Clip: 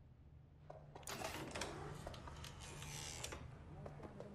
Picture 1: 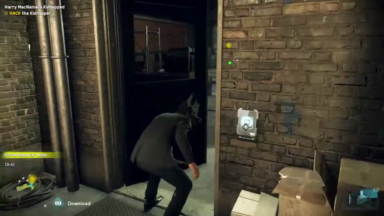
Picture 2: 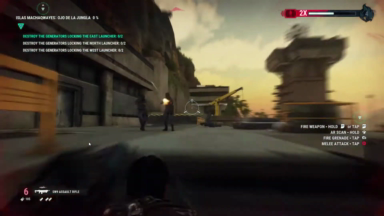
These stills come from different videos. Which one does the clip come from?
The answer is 1